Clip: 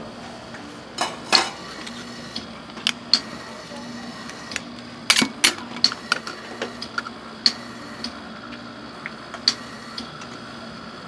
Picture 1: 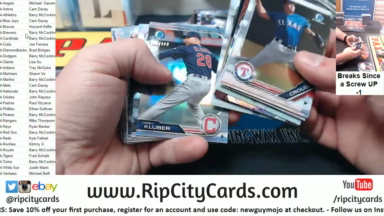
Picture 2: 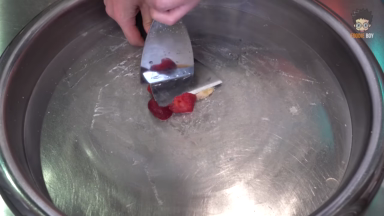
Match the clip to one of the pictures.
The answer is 2